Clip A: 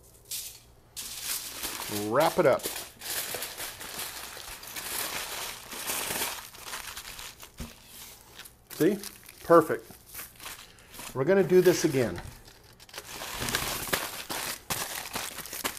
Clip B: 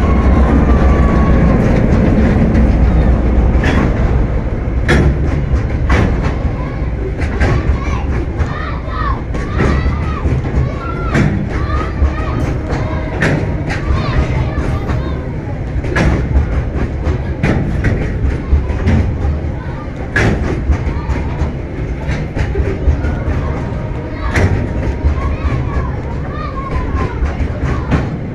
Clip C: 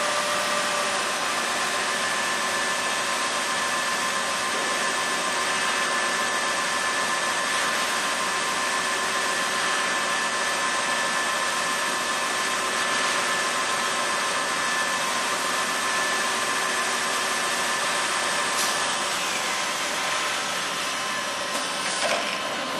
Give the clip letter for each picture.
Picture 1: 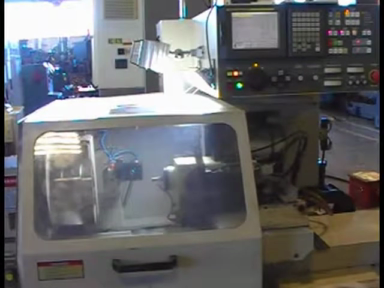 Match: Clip C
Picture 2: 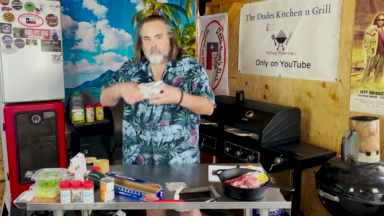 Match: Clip A